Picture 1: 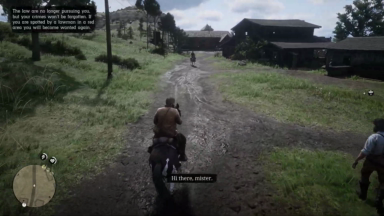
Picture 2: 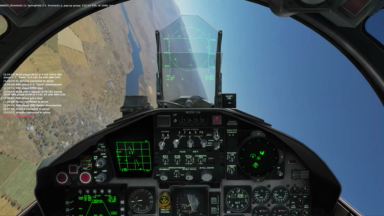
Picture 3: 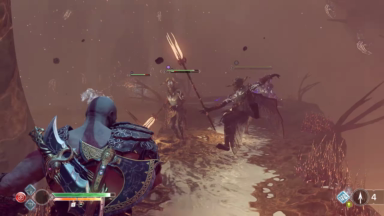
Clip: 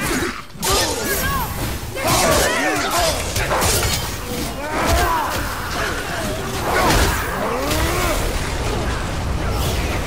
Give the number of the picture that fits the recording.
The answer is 3